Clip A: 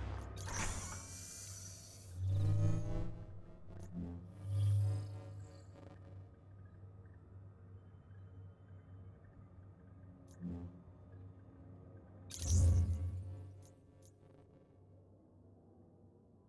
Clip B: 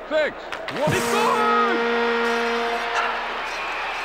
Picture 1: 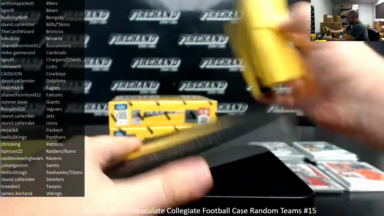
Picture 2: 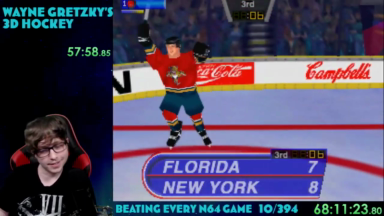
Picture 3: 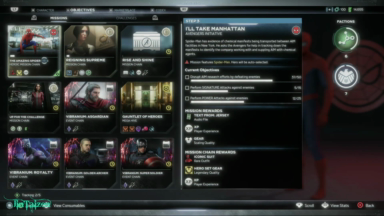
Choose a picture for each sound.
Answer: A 3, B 2